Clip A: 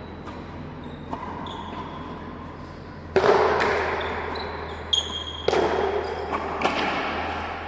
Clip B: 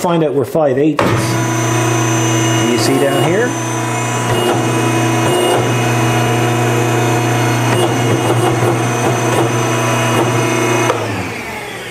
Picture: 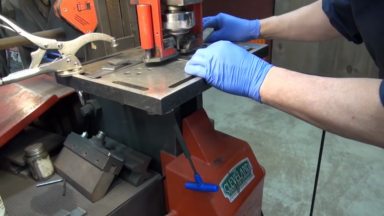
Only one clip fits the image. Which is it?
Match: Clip B